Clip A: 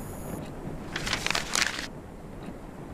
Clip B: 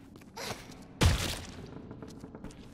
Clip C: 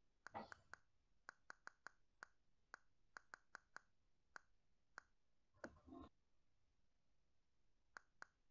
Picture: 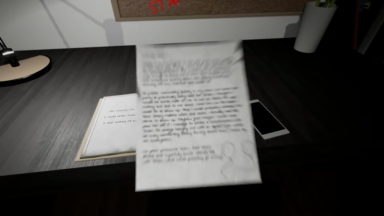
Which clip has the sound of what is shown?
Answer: A